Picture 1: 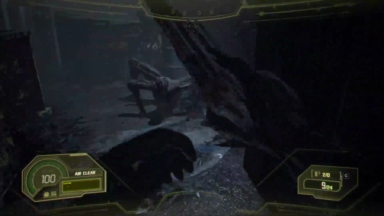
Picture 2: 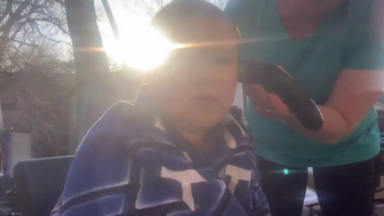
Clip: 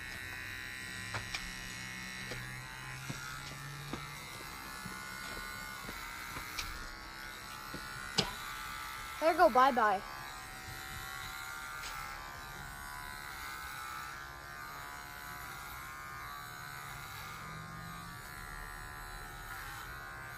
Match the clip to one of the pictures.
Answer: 2